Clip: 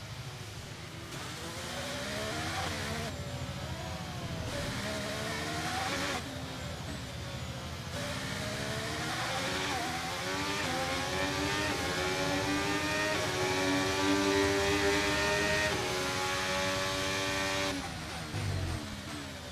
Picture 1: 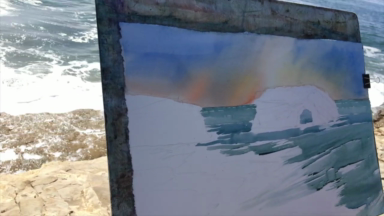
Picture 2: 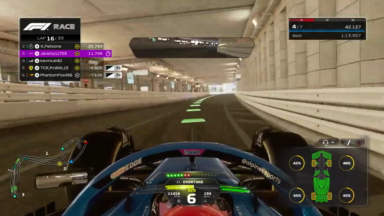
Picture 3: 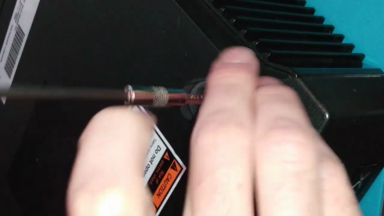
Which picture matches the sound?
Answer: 2